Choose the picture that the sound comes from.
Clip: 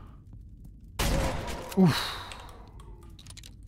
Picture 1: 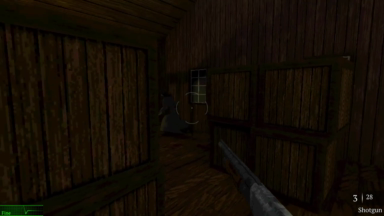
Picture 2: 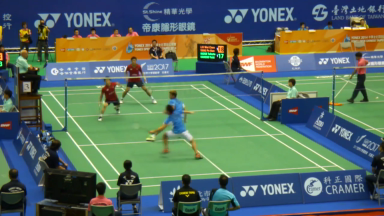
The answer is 1